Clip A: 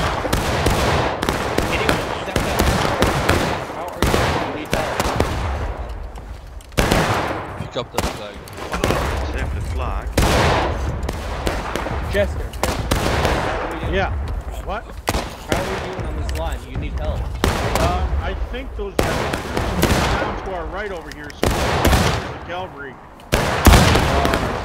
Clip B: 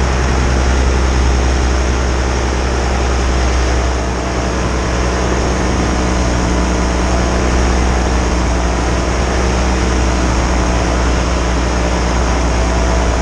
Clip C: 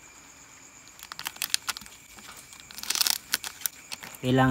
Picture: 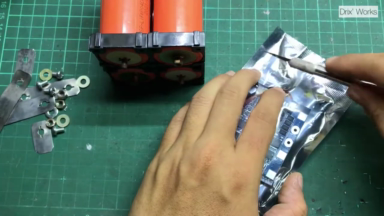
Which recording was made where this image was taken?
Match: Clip C